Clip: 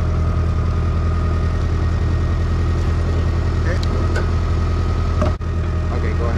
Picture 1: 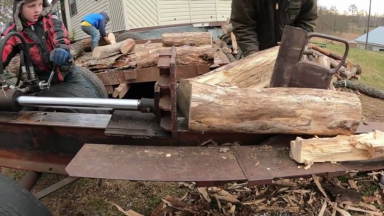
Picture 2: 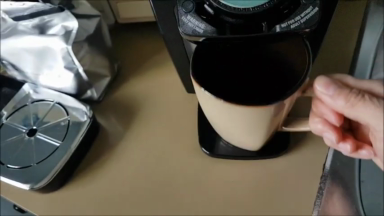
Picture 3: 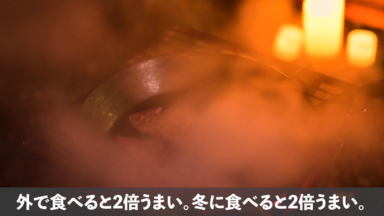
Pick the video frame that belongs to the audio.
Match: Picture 1